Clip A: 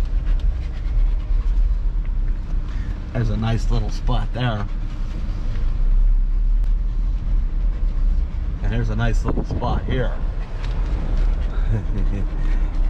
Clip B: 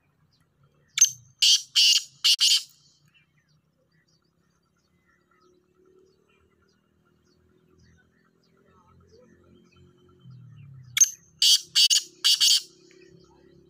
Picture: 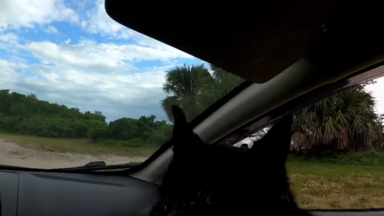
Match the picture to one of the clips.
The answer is A